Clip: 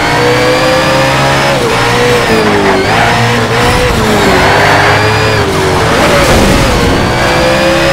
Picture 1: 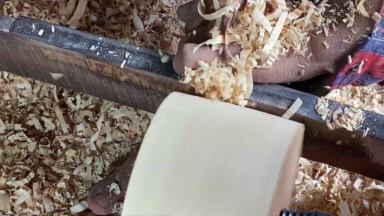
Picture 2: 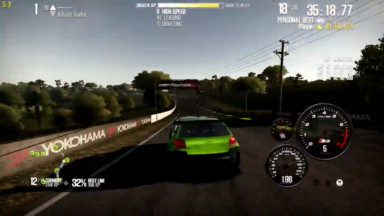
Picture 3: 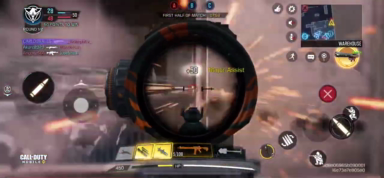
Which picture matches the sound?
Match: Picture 2